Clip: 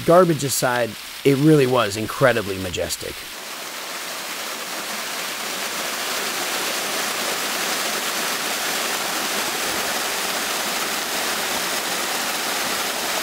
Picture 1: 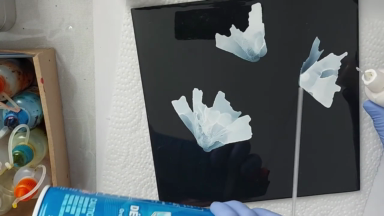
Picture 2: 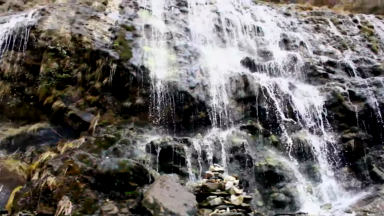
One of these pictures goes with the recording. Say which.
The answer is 2